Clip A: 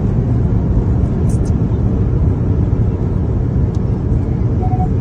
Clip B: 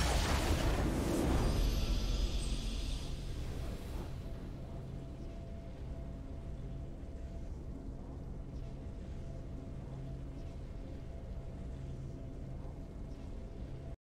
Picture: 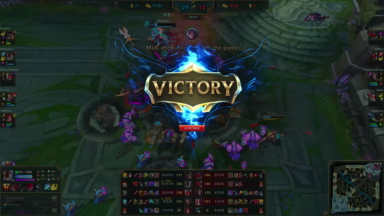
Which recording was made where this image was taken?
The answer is B